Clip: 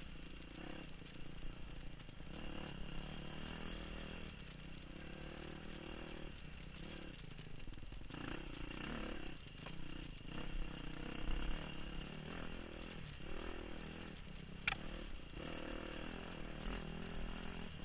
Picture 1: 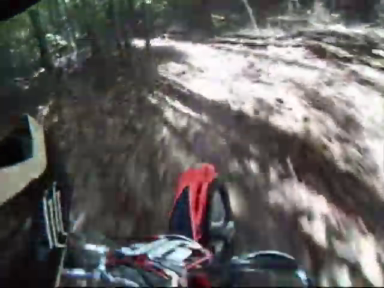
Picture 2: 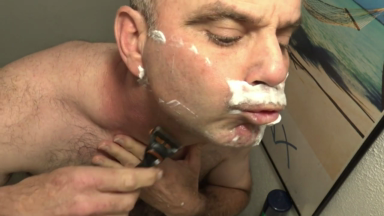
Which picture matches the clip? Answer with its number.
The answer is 1